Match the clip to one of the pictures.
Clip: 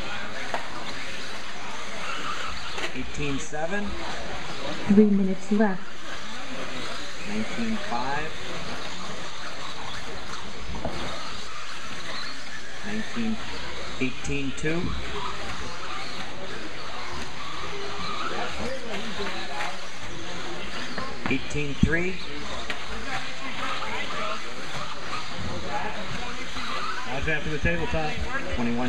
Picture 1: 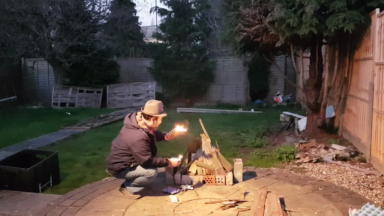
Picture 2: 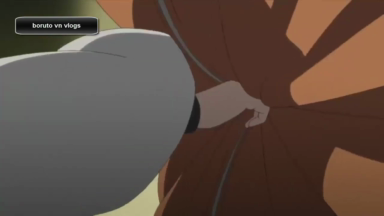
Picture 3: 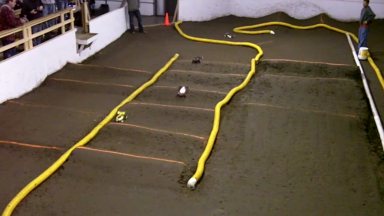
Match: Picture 3